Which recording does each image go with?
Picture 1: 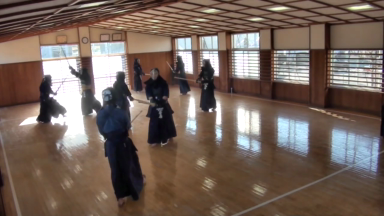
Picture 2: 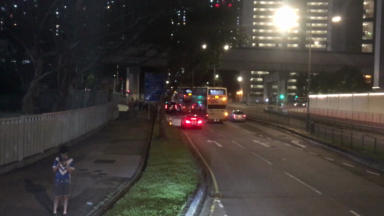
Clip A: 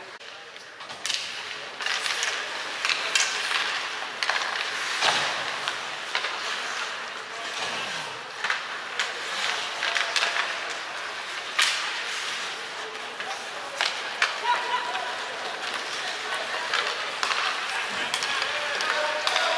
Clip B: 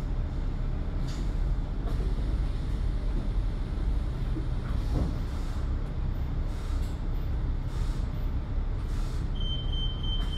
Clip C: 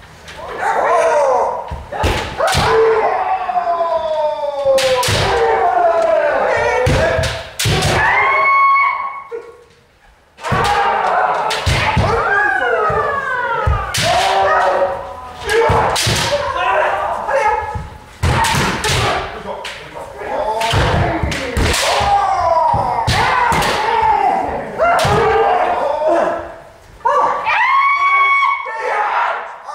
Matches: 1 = C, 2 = B